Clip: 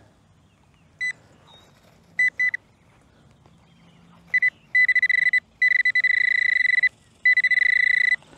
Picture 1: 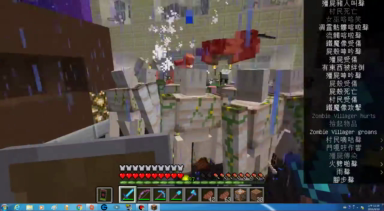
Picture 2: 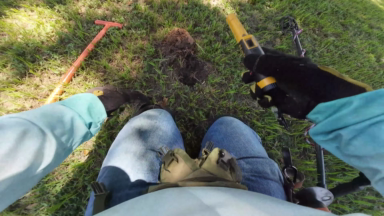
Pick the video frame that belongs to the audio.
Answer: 2